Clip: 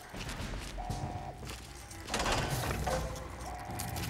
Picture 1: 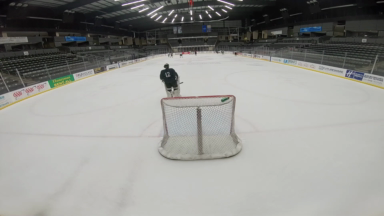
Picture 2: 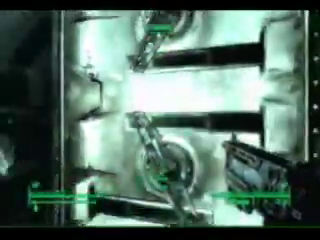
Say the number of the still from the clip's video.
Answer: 2